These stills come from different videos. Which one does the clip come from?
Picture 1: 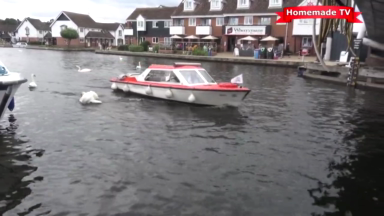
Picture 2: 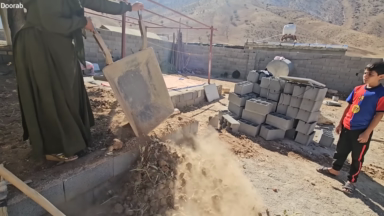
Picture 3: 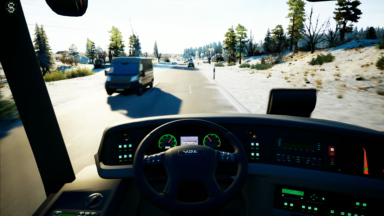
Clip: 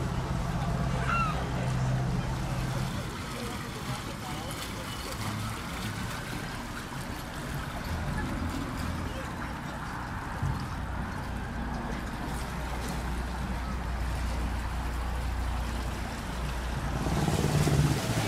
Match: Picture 1